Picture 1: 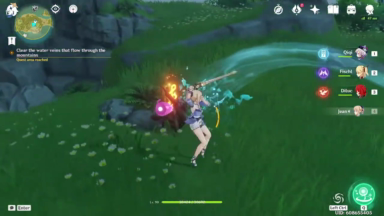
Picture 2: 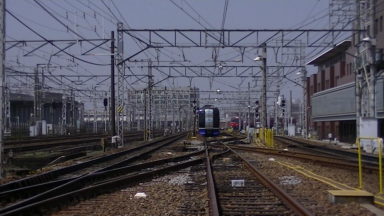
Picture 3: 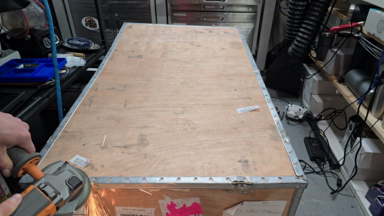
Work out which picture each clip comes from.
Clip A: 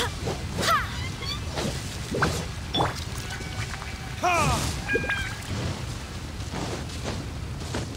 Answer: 1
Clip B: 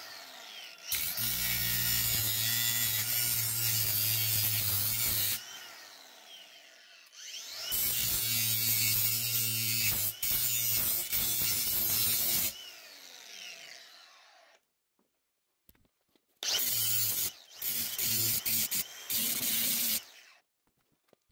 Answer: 3